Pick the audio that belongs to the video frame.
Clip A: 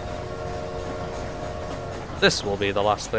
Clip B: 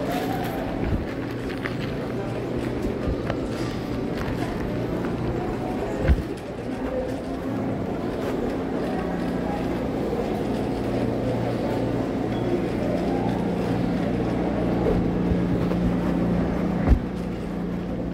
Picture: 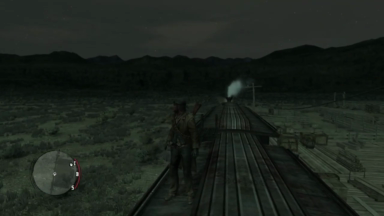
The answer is A